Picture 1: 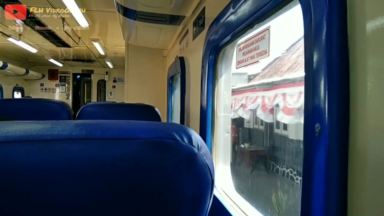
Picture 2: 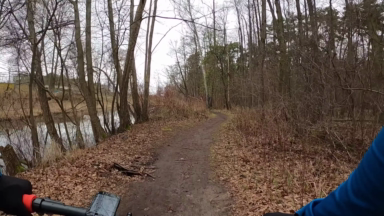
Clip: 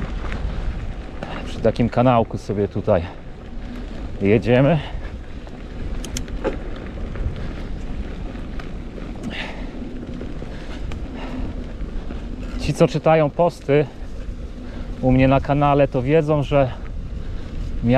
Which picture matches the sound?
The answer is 2